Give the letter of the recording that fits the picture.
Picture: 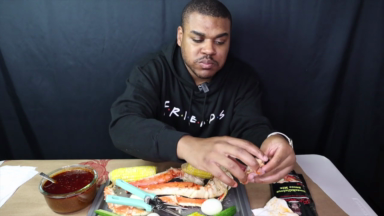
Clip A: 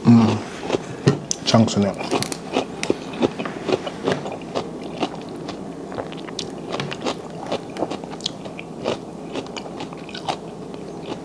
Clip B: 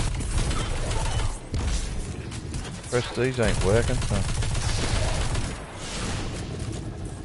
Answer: A